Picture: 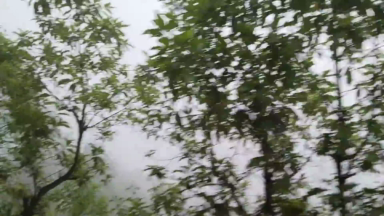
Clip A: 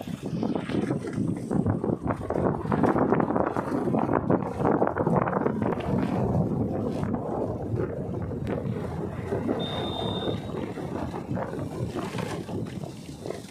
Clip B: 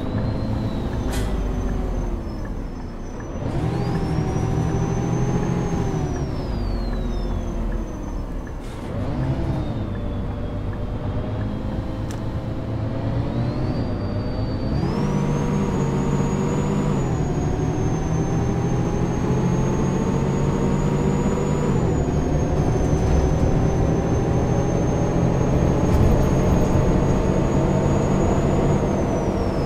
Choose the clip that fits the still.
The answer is A